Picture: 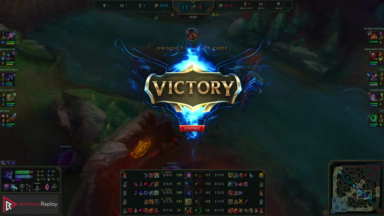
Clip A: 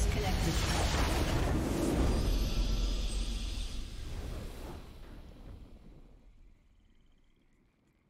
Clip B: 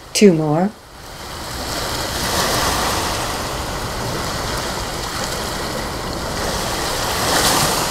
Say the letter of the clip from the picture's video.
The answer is A